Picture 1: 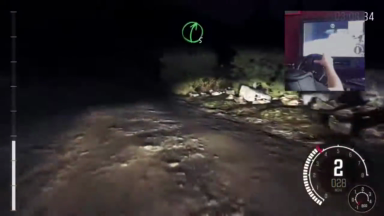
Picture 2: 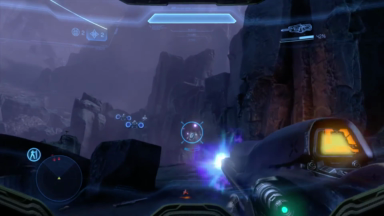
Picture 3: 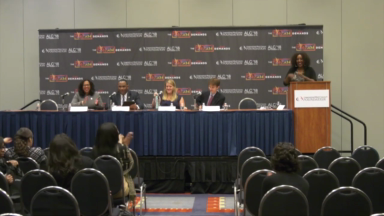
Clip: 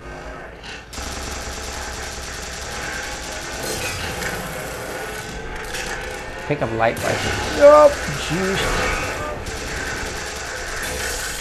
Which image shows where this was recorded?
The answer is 2